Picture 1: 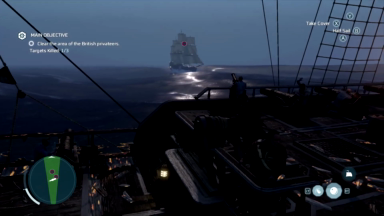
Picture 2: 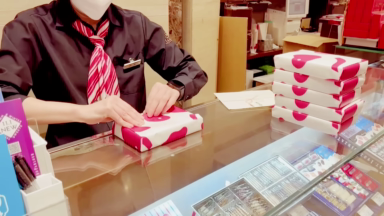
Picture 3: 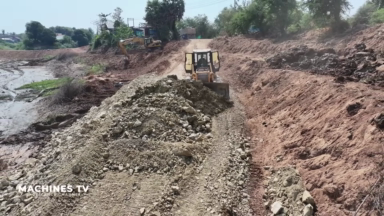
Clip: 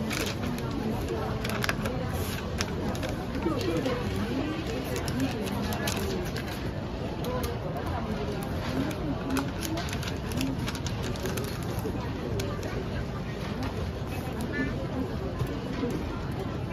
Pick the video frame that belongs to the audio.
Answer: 2